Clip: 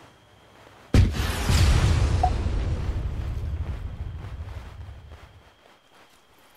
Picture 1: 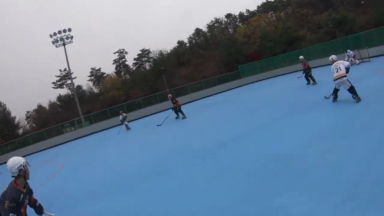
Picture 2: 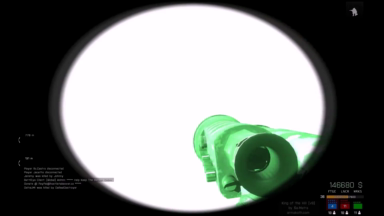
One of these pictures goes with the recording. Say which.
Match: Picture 2